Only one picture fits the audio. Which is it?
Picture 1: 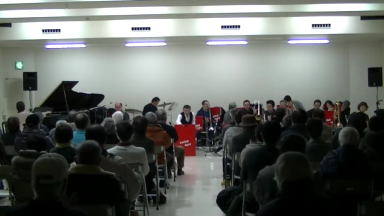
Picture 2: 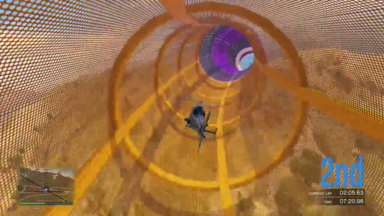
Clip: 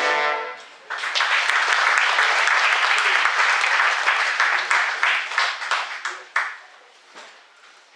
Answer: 1